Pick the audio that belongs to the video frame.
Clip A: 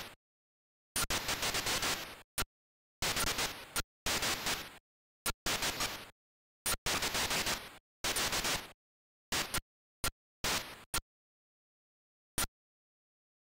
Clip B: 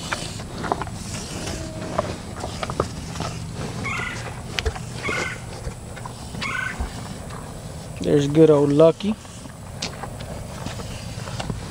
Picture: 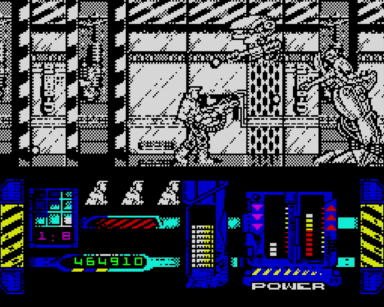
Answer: A